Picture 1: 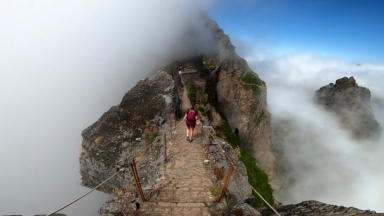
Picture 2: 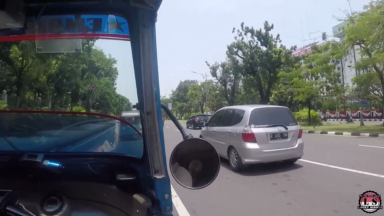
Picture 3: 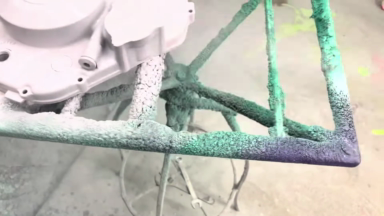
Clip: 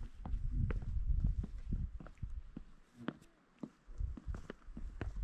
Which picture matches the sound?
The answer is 1